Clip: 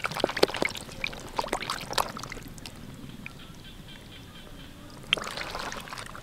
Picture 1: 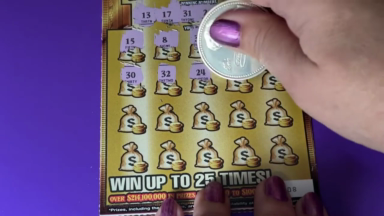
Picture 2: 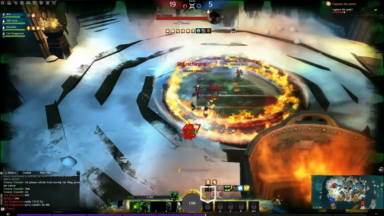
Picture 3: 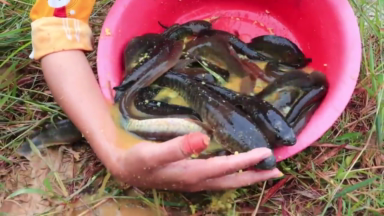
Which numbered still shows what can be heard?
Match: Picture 3